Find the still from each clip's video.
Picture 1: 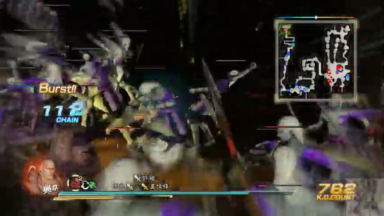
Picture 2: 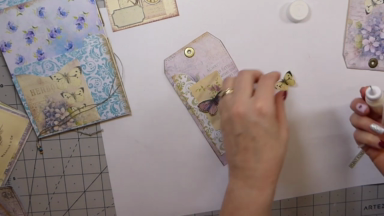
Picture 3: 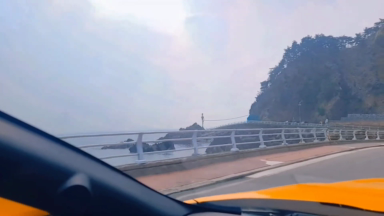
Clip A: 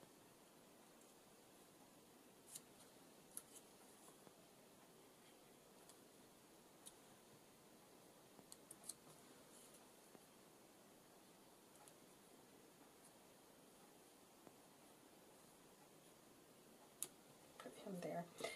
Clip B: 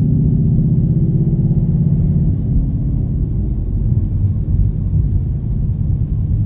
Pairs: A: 2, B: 3